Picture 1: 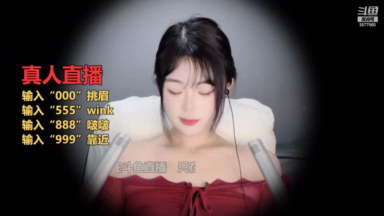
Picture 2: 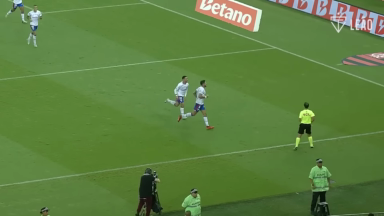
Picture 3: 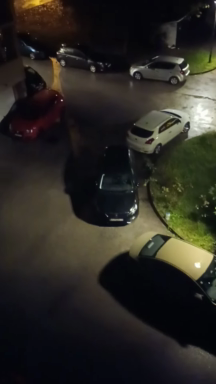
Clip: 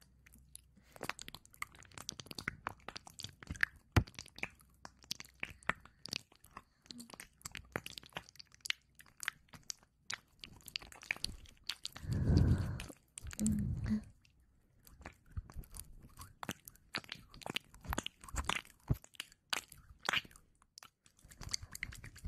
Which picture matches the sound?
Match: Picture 1